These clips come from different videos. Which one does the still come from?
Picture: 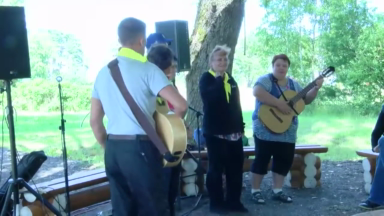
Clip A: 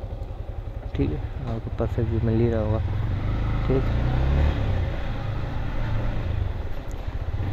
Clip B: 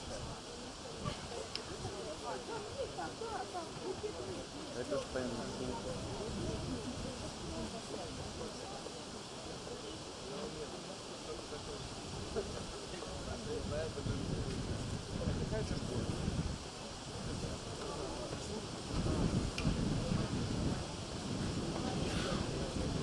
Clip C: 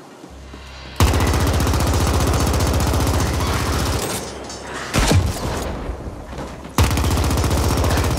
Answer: B